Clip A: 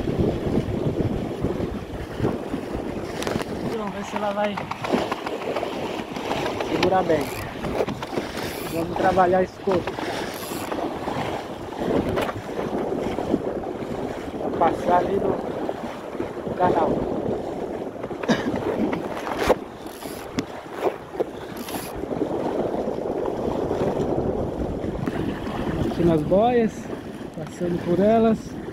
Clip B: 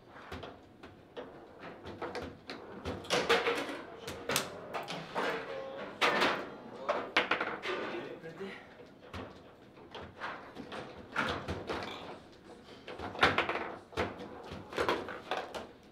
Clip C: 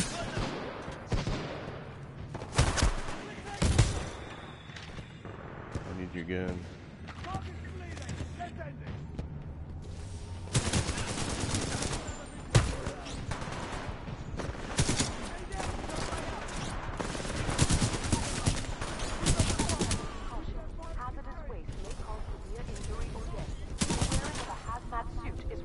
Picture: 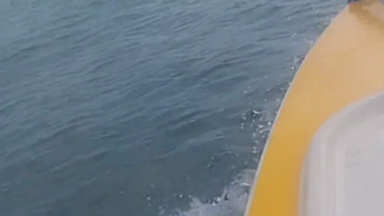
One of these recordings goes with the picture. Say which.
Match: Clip A